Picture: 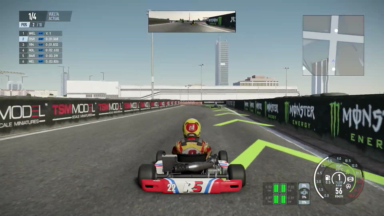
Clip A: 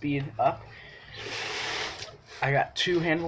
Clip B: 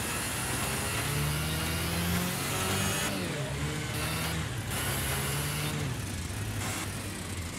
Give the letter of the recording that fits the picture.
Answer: B